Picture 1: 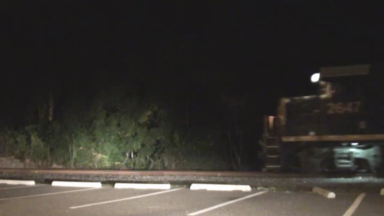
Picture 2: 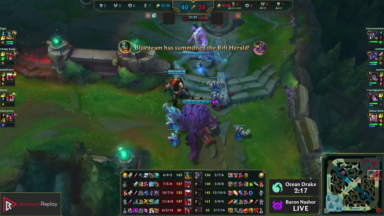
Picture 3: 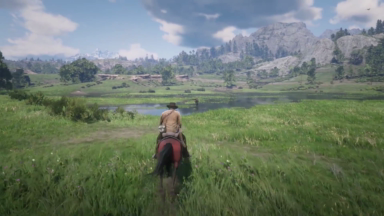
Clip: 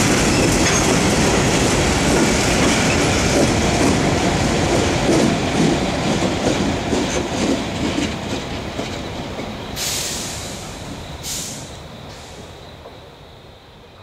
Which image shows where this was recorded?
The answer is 1